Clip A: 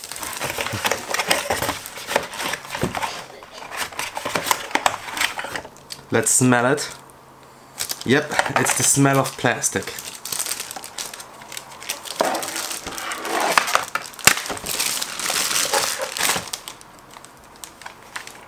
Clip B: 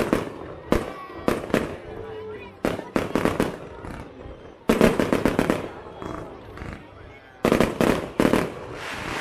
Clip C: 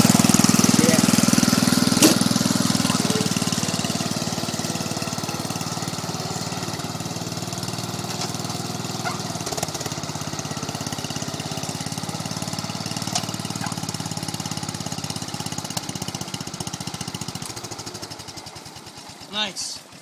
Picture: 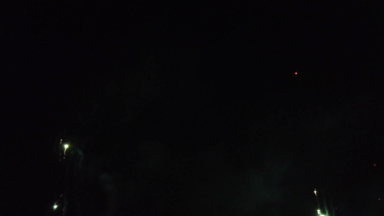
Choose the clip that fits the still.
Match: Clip B